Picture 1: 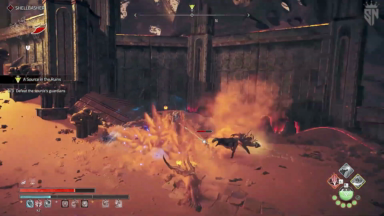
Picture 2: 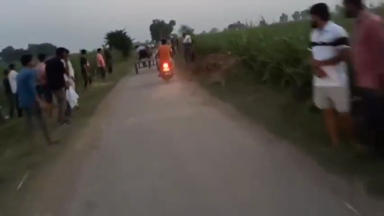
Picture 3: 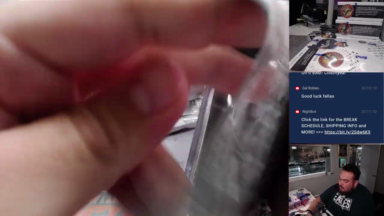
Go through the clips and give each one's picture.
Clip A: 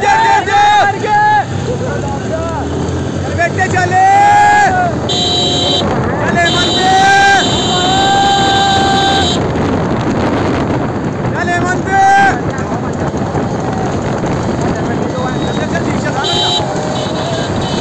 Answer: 2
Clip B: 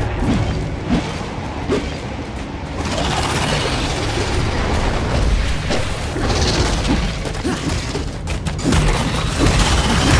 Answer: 1